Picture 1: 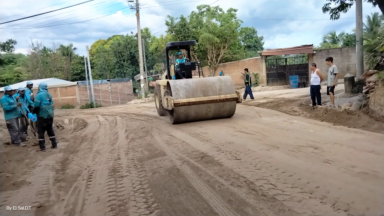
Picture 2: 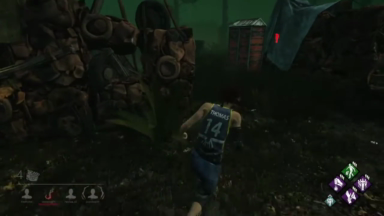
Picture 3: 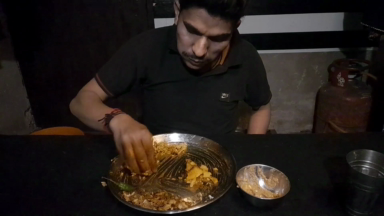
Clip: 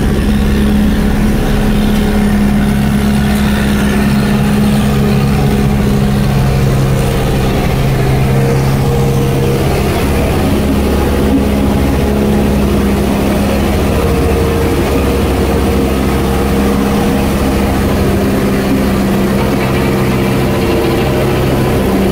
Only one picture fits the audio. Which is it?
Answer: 1